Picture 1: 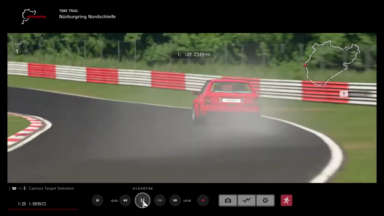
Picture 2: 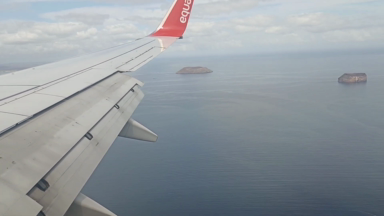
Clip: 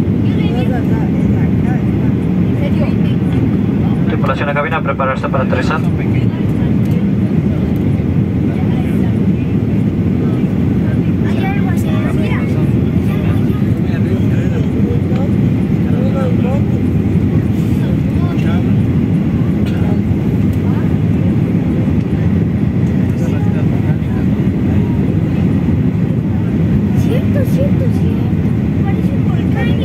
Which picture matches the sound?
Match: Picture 2